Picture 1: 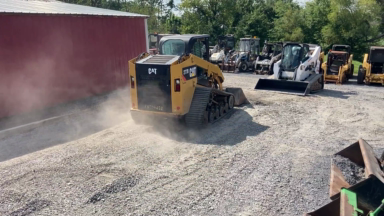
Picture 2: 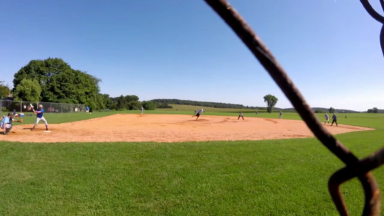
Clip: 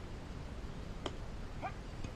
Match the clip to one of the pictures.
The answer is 2